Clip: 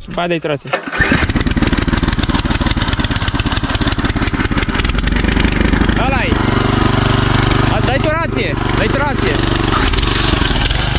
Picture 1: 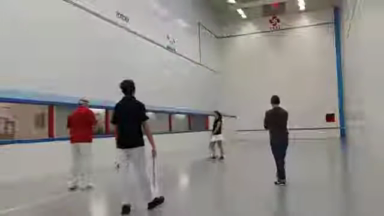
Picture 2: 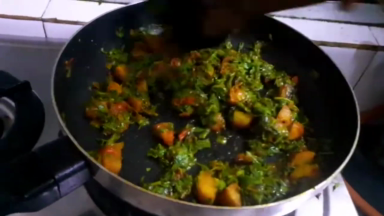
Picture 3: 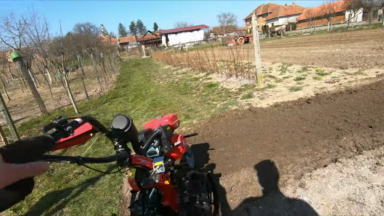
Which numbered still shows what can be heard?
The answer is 3